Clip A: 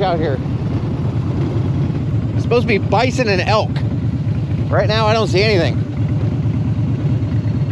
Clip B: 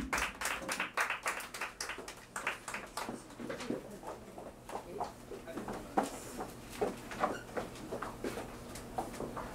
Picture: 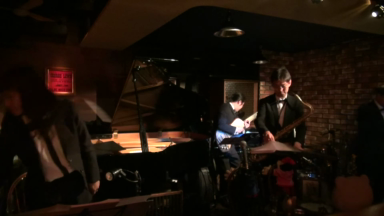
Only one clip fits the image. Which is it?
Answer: B